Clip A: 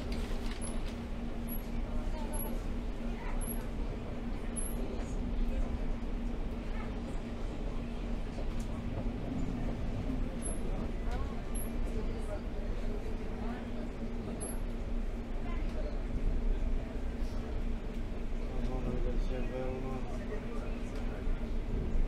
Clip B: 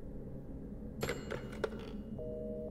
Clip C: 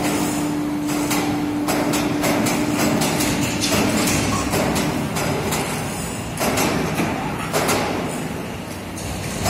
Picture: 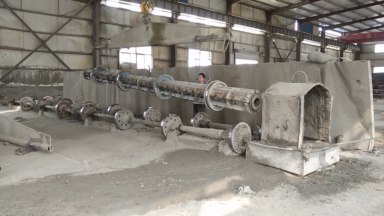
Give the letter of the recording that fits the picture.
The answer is C